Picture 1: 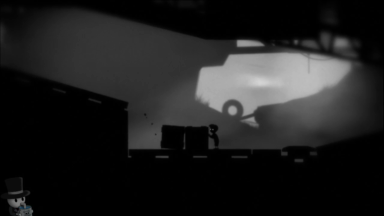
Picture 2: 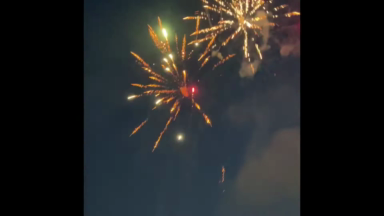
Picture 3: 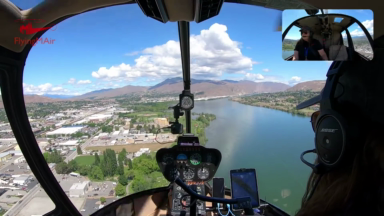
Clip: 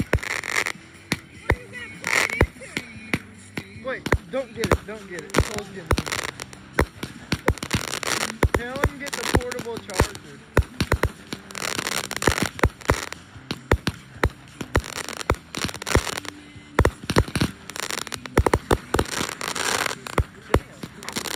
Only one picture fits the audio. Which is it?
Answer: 2